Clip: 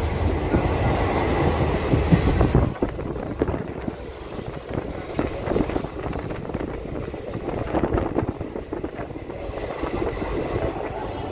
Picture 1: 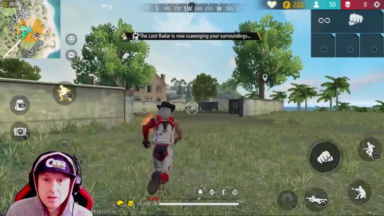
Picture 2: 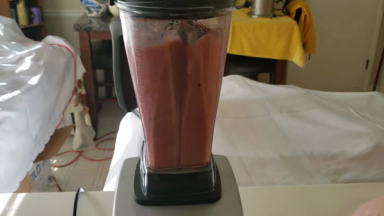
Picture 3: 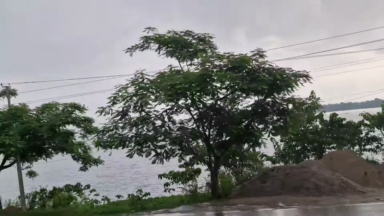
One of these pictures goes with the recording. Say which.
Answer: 3